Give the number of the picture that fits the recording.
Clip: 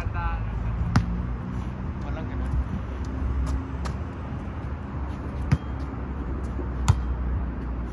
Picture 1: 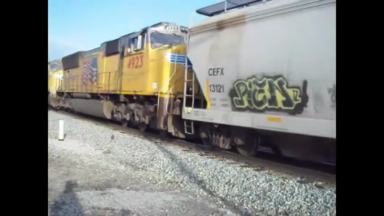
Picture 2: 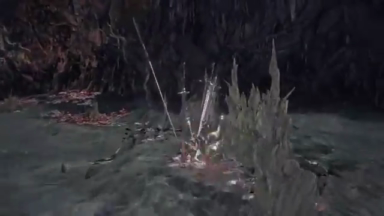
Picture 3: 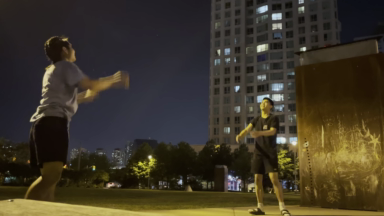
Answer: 3